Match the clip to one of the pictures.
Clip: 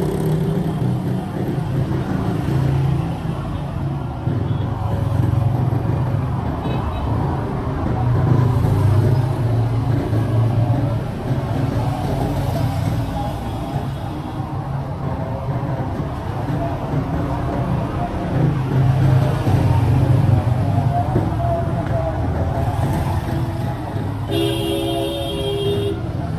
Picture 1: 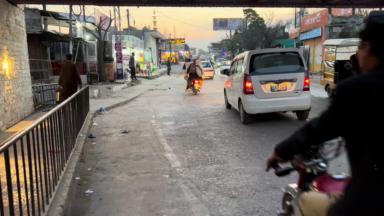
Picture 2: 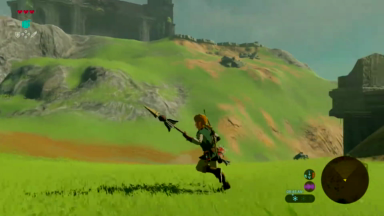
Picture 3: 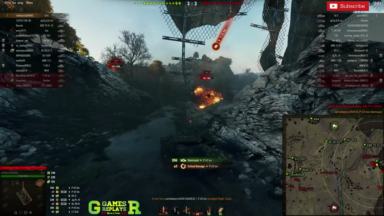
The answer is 1